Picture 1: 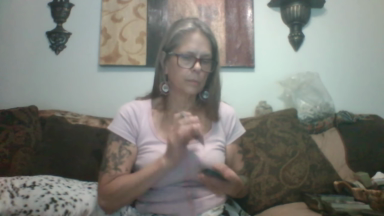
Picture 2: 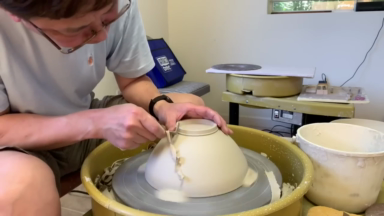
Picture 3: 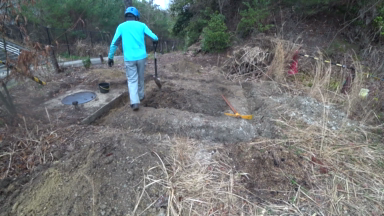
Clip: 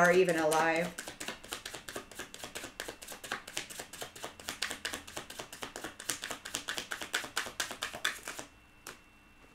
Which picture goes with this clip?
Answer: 1